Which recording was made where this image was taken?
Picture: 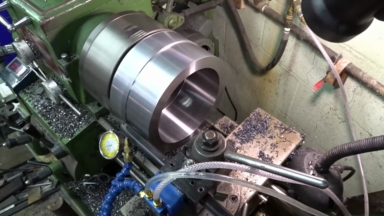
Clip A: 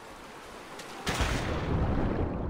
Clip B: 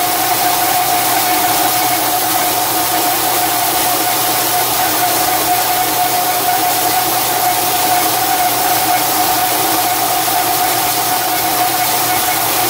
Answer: B